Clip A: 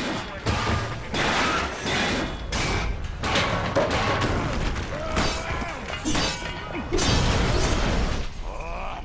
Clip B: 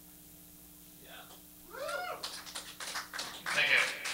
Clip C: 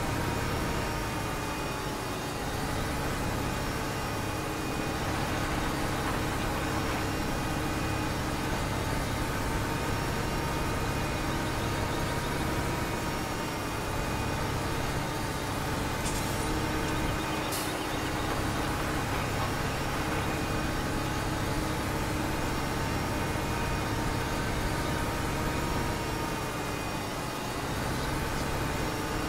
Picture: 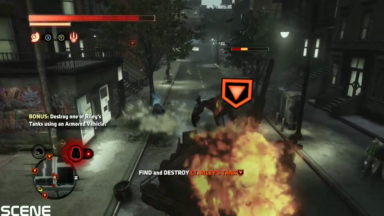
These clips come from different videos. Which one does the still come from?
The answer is A